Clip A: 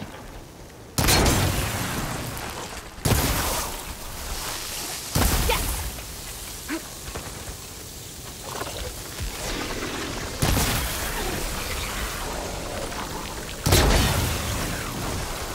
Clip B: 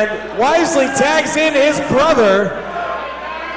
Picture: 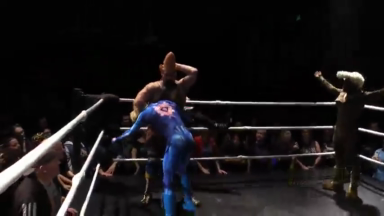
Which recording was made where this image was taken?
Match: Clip B